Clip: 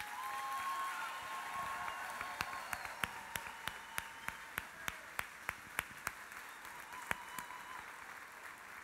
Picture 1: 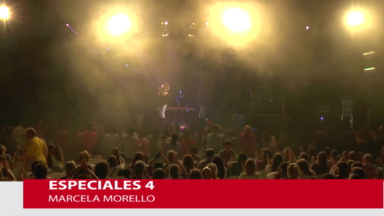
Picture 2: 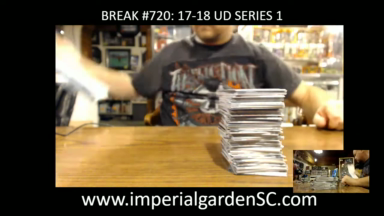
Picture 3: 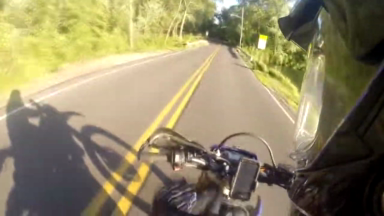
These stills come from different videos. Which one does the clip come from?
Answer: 1